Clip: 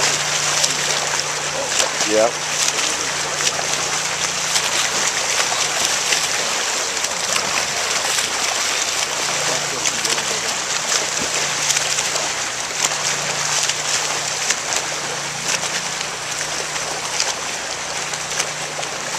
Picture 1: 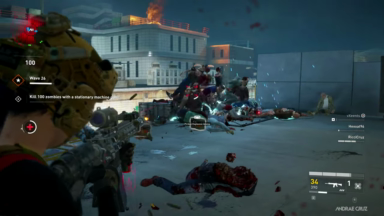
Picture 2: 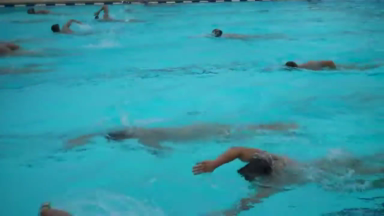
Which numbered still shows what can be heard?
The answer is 2